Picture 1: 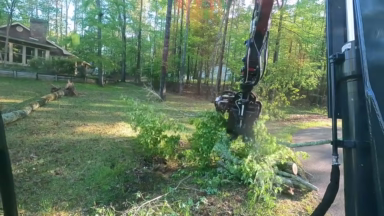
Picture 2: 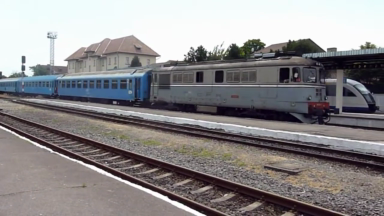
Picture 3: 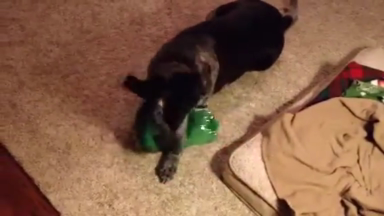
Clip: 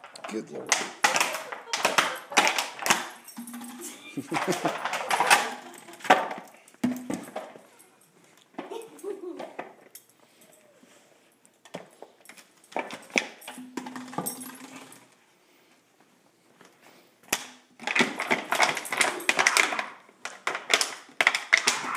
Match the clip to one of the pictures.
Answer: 3